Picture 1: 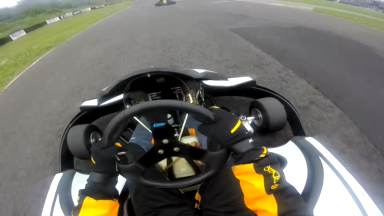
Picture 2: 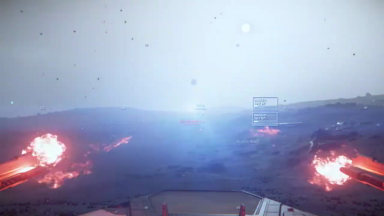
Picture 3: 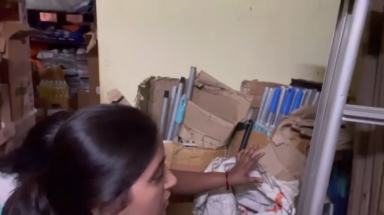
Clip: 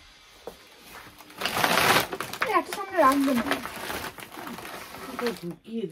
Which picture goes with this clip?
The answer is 3